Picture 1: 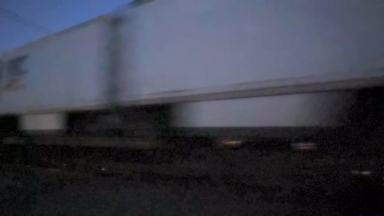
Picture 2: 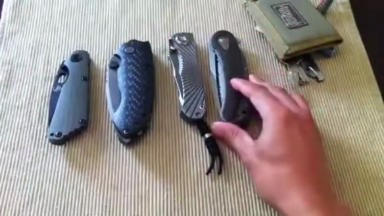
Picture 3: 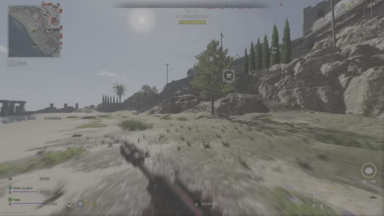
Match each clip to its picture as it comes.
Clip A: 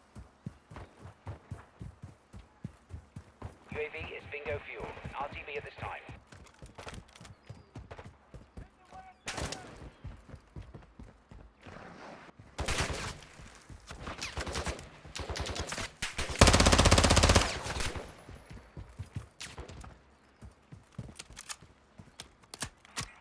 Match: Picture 3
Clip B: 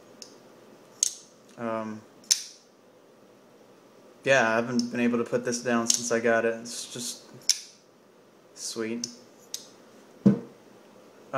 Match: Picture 2